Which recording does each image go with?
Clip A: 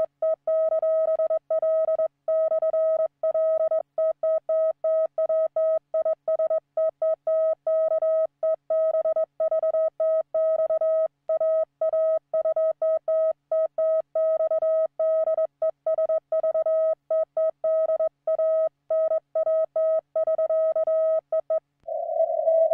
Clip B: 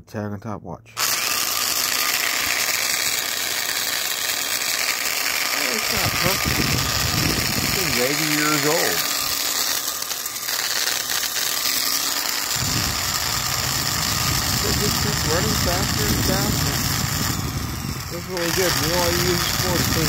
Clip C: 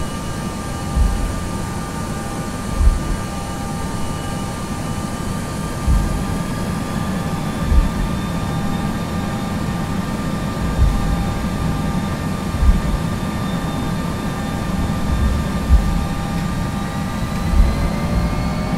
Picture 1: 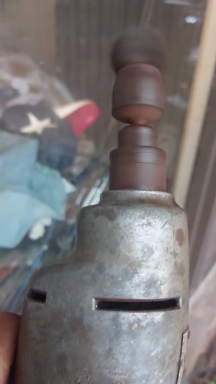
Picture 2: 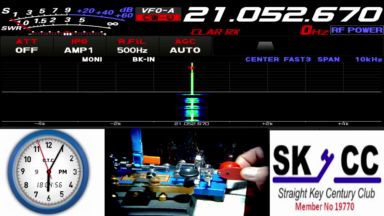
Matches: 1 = B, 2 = A